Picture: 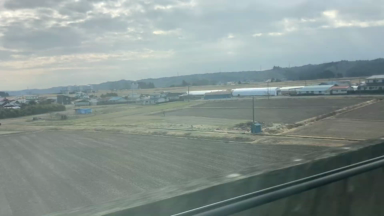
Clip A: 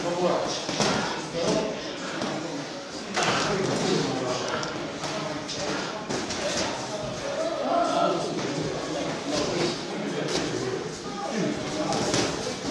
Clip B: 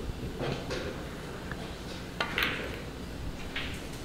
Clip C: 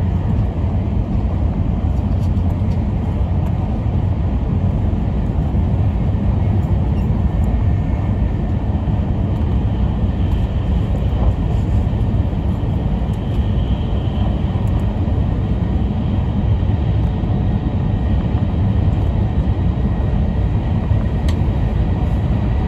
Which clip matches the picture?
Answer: C